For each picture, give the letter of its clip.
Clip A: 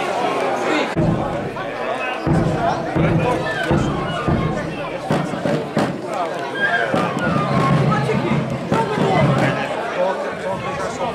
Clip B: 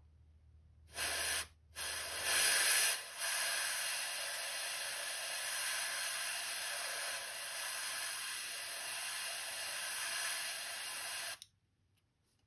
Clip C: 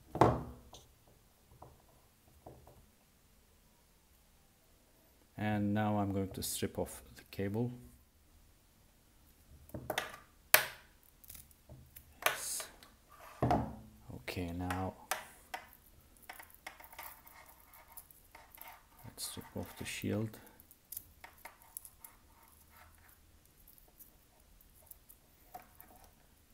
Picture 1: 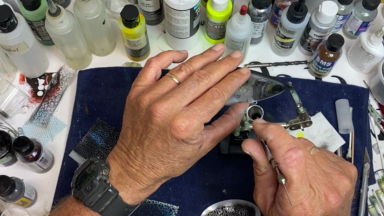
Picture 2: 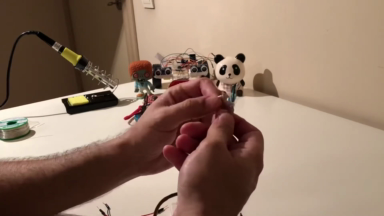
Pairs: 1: B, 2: C